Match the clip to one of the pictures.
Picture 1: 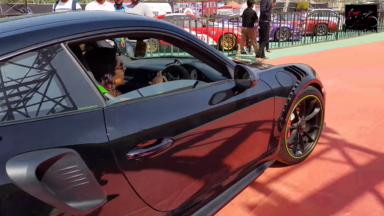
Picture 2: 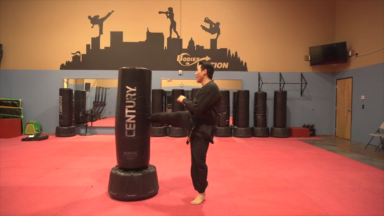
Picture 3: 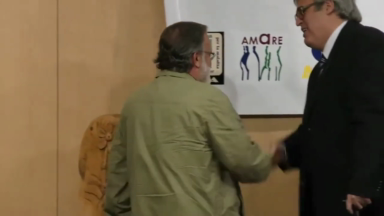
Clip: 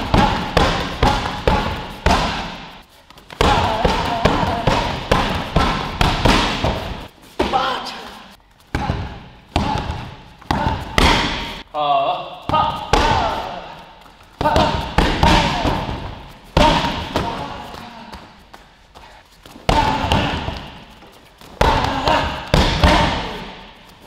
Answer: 2